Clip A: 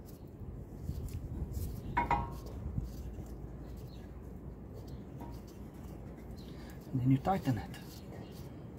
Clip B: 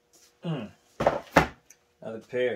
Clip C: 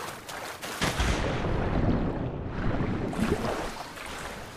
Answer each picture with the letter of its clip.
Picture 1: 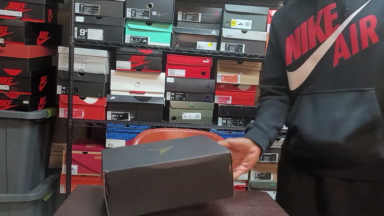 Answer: B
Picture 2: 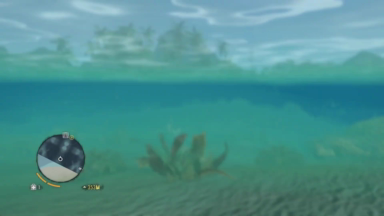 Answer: C